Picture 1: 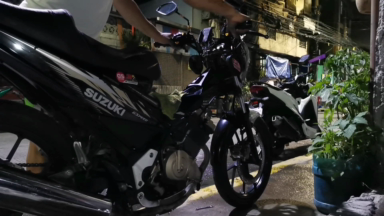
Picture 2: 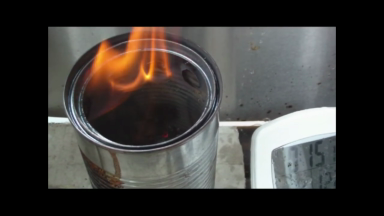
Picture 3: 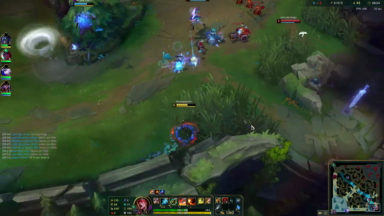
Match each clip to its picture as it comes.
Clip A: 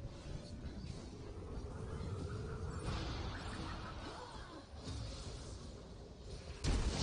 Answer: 3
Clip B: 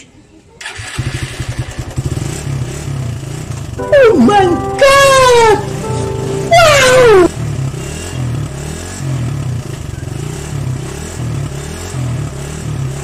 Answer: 1